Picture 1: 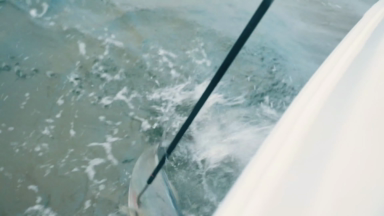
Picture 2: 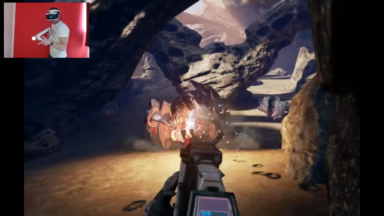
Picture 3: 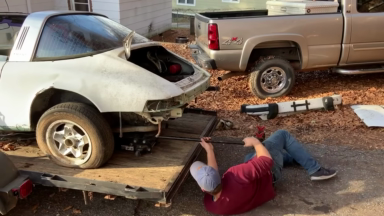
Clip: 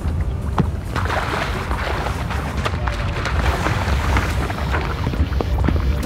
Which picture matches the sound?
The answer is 1